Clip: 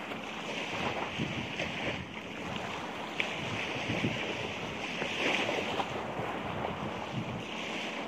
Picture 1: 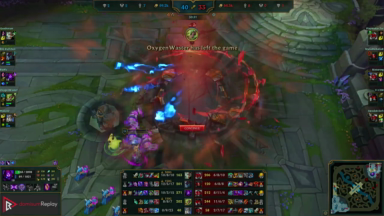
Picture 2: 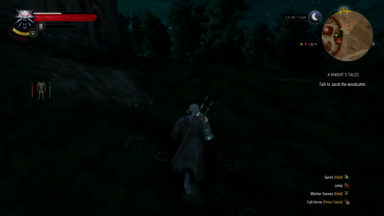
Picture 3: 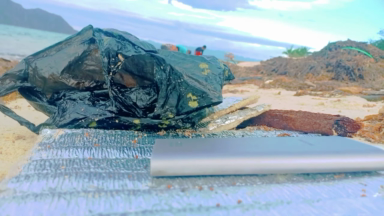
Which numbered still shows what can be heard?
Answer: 3